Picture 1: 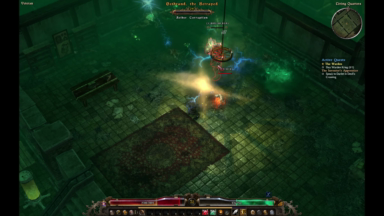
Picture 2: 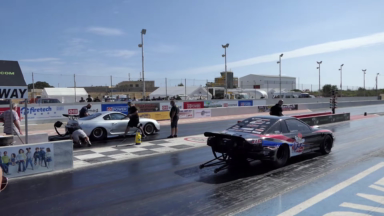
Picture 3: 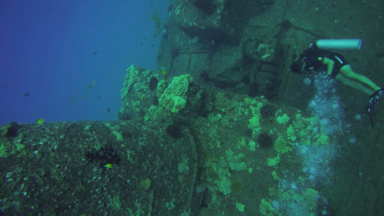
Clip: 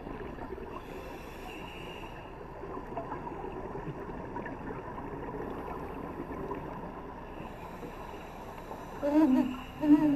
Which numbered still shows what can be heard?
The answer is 3